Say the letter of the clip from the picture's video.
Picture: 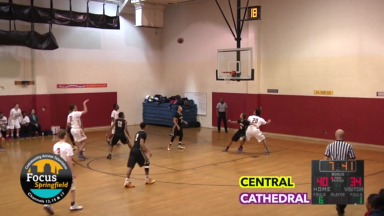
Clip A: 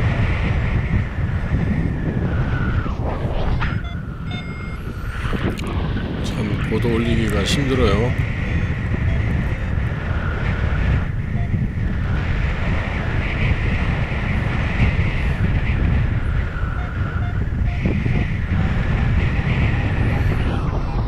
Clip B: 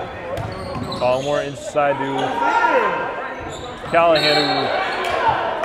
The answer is B